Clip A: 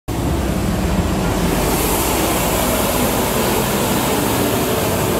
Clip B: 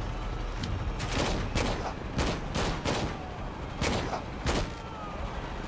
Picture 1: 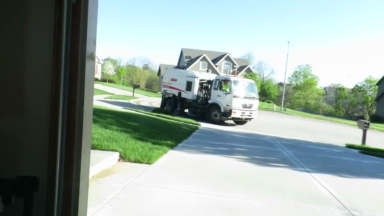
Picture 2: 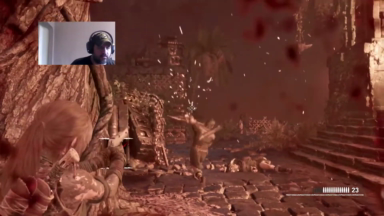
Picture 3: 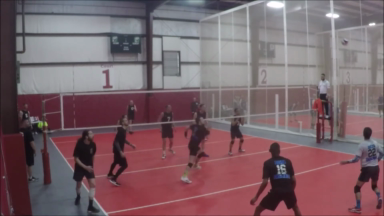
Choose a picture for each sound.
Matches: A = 1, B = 2